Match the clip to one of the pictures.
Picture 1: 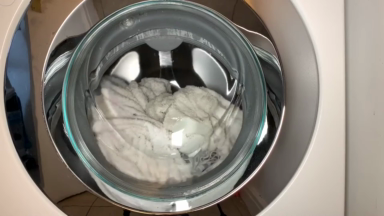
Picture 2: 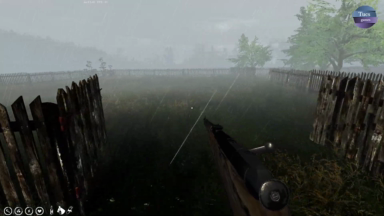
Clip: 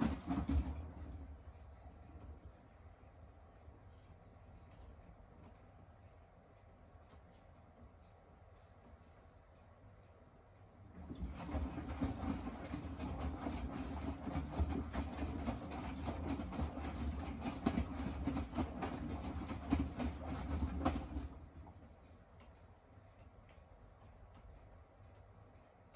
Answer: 1